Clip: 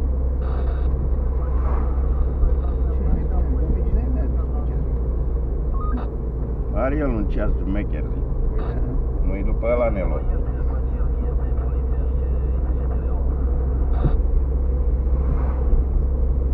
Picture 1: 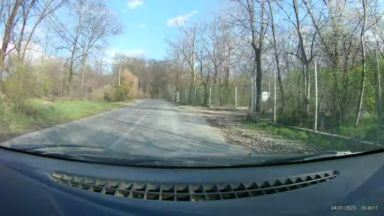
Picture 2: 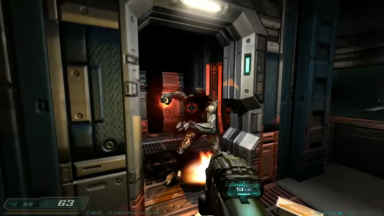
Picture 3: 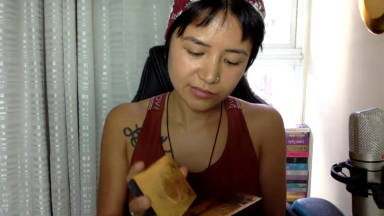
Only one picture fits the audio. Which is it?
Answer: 1